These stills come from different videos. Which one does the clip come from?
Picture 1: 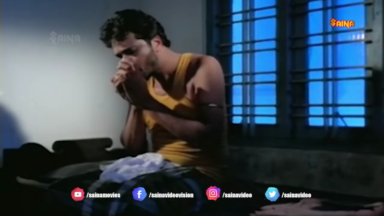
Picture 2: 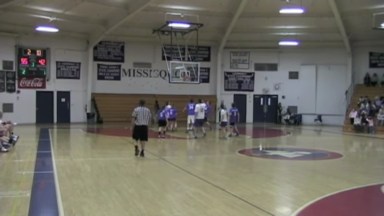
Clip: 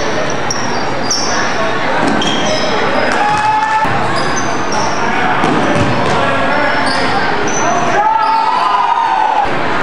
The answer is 2